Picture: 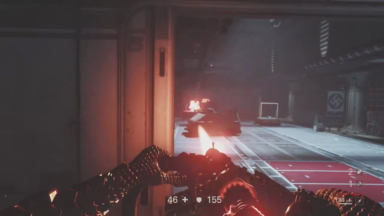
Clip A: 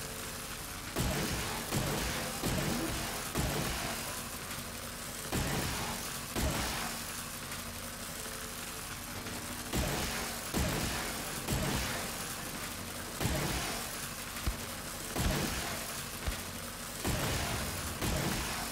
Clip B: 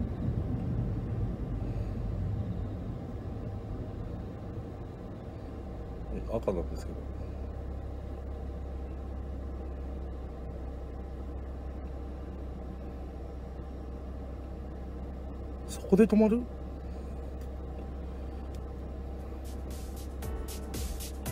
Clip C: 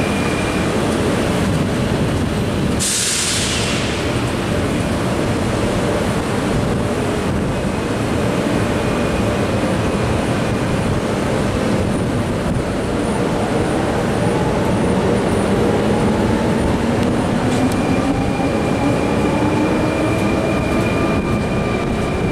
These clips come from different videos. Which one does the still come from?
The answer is A